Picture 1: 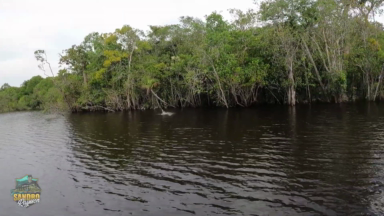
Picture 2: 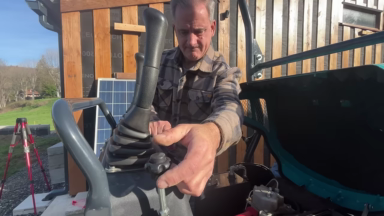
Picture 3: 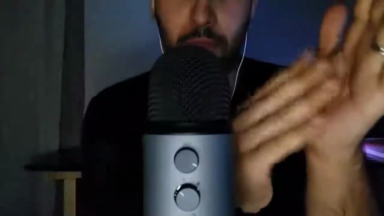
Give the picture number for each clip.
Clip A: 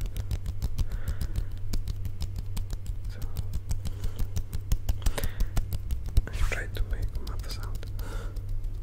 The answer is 3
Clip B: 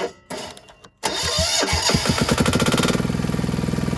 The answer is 2